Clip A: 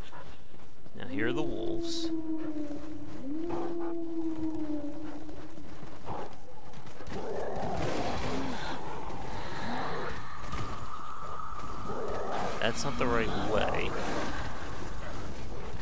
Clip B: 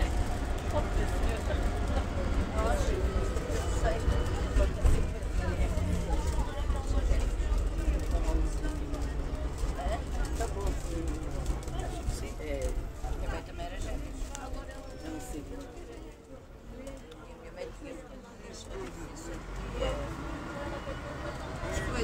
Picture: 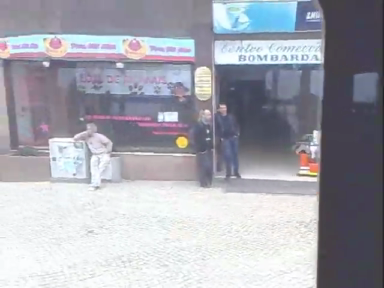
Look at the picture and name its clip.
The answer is B